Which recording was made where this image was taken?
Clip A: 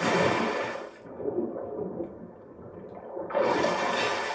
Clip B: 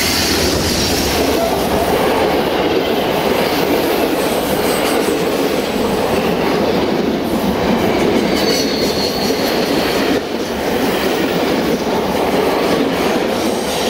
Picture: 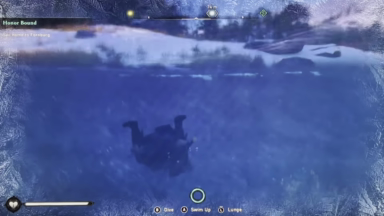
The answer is A